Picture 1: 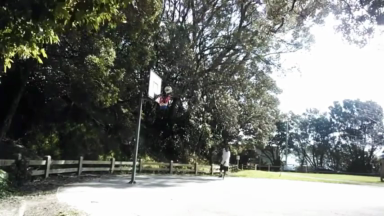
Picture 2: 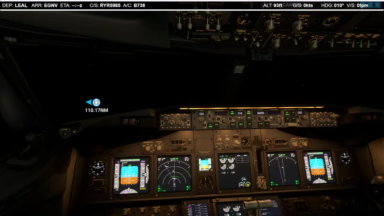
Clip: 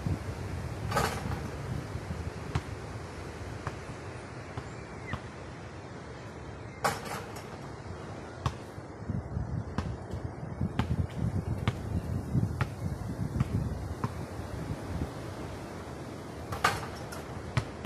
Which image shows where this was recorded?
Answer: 1